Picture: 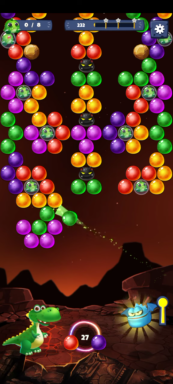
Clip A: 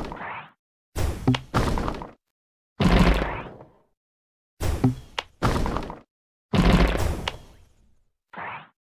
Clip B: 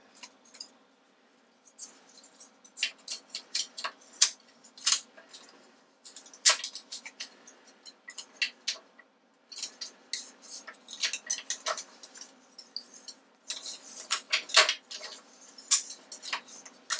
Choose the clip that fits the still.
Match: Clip A